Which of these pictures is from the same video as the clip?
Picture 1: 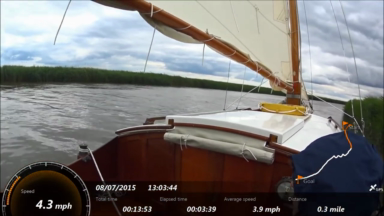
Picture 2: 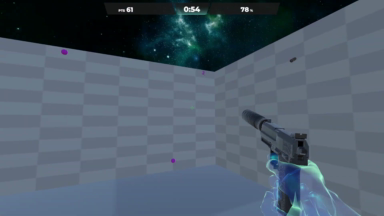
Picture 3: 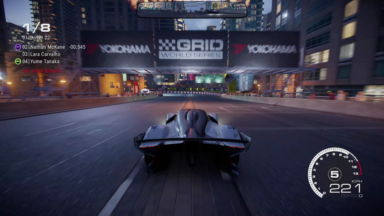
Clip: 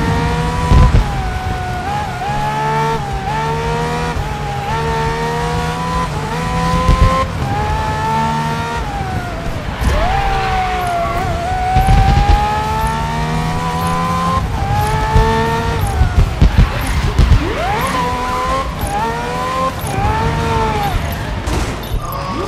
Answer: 3